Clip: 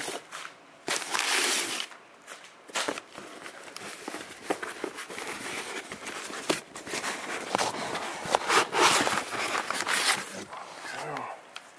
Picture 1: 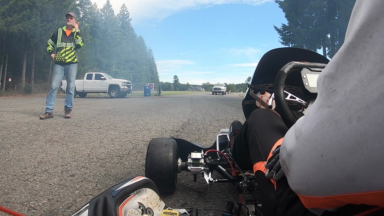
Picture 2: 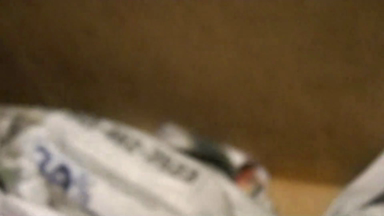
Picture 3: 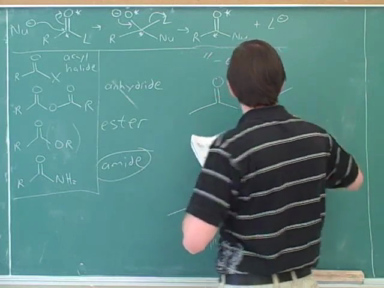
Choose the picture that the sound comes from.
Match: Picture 2